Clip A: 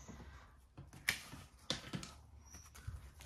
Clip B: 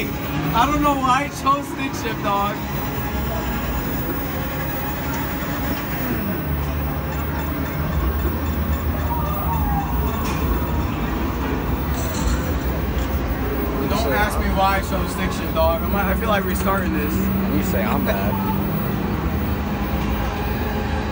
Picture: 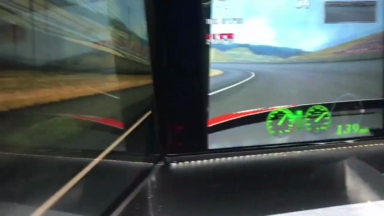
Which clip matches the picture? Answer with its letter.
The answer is B